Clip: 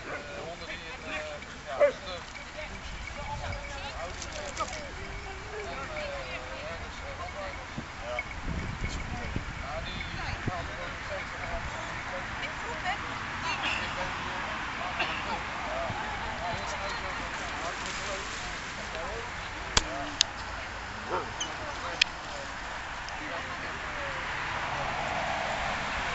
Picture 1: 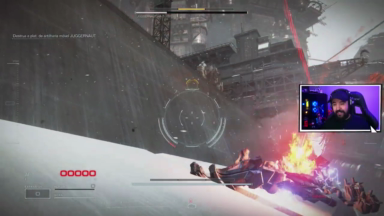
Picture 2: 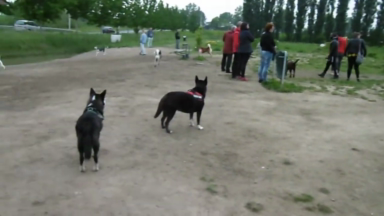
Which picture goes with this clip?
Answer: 2